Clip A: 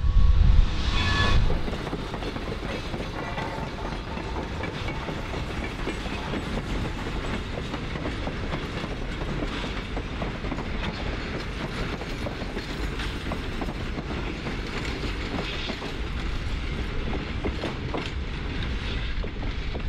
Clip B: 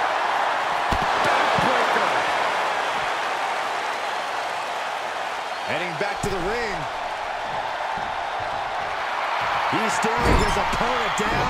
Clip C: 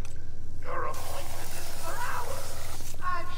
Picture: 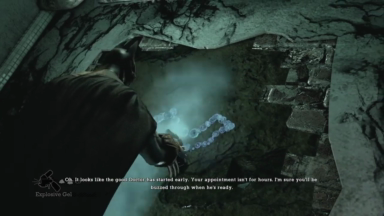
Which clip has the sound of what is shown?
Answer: C